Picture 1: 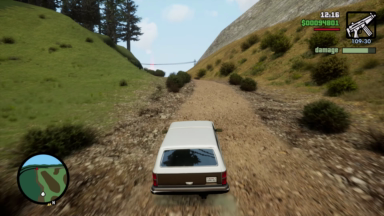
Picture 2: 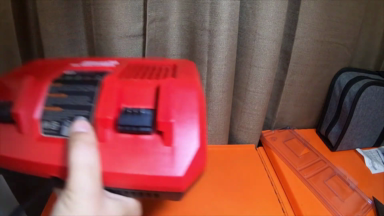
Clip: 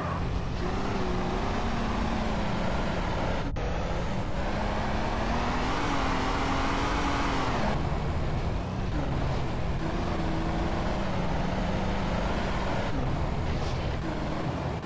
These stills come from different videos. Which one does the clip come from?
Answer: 1